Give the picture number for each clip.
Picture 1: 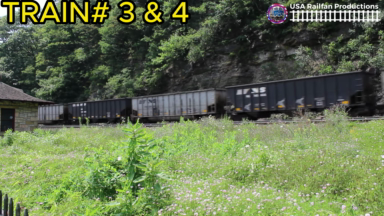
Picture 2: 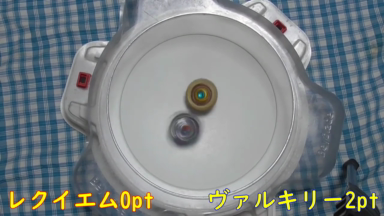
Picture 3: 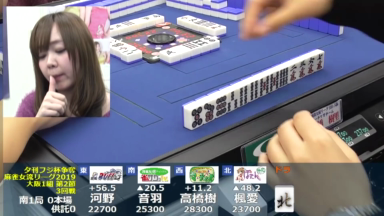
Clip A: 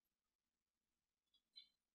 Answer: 3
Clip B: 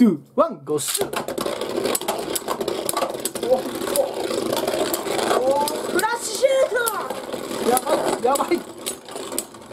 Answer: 2